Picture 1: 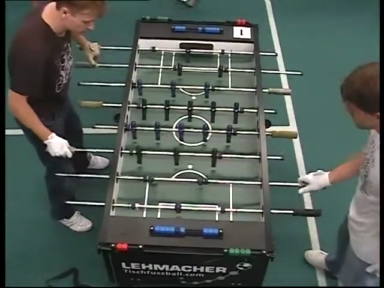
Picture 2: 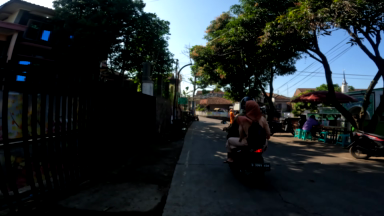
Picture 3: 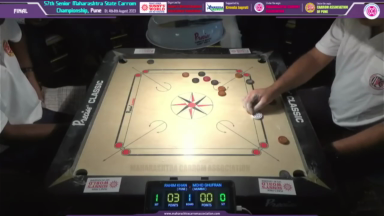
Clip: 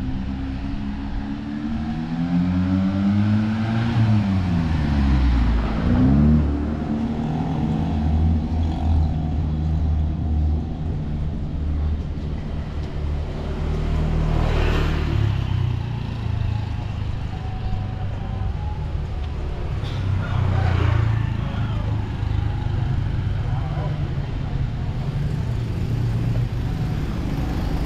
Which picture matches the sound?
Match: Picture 2